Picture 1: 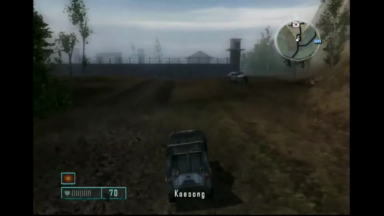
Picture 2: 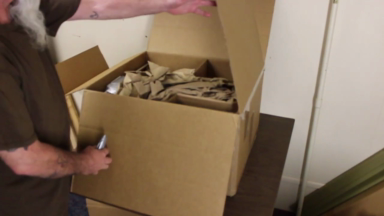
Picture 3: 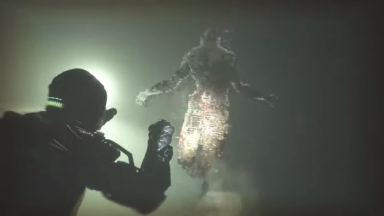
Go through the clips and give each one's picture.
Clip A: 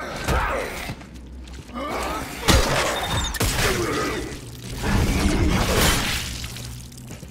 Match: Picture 3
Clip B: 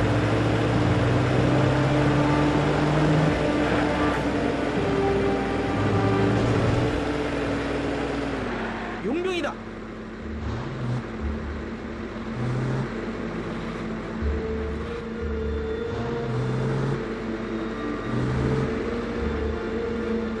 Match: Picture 1